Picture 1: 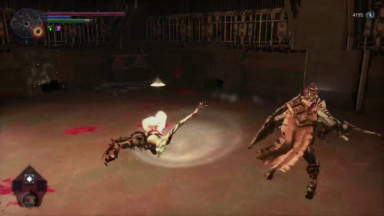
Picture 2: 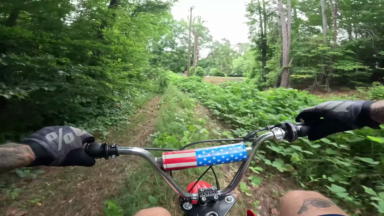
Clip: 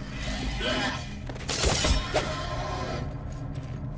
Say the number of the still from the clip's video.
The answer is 1